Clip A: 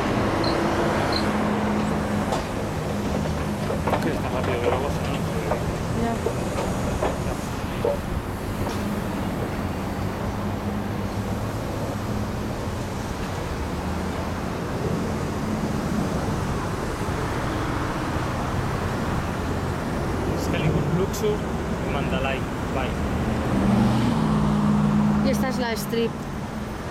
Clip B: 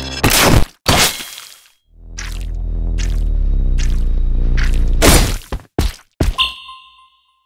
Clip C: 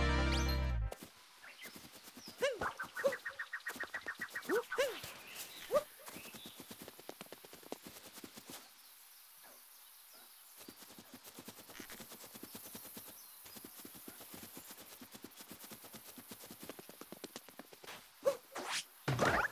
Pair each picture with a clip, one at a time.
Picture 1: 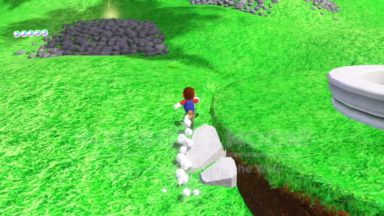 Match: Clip C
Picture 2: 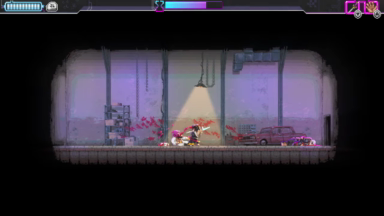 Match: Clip B